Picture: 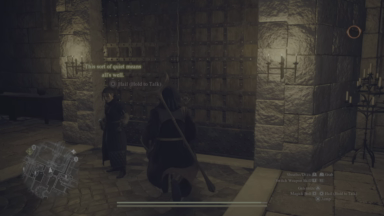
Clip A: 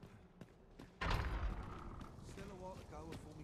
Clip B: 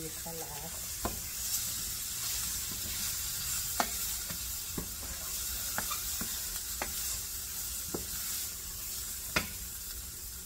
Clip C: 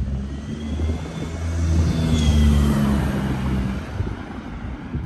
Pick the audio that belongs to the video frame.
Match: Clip A